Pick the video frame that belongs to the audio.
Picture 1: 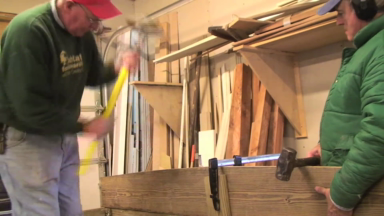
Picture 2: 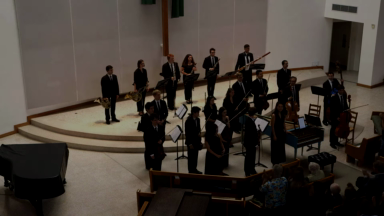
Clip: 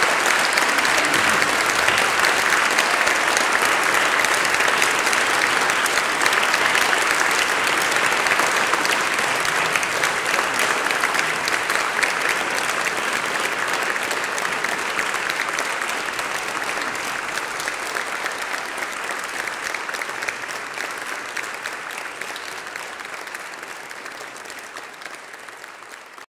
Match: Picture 2